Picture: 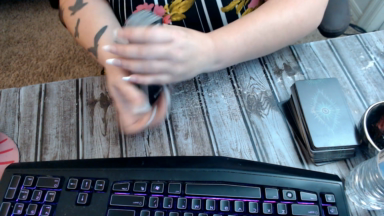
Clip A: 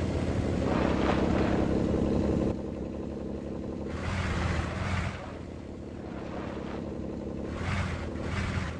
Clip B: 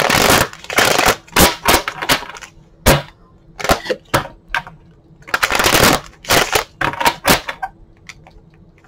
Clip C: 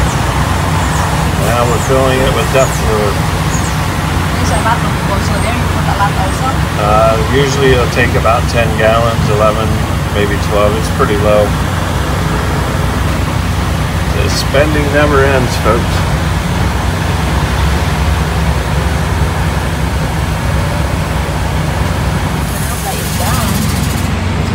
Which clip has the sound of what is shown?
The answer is B